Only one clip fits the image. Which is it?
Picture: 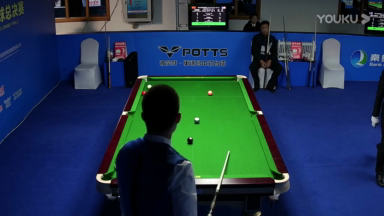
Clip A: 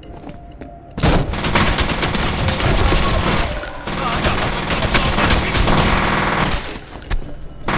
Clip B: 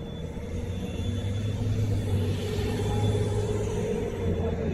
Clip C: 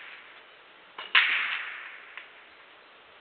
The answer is C